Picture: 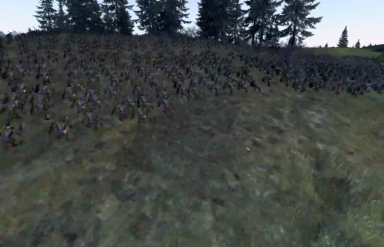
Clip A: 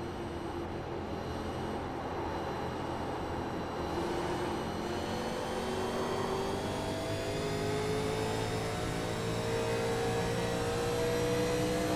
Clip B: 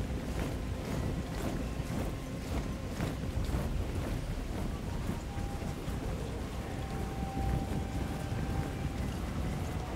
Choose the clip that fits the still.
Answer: B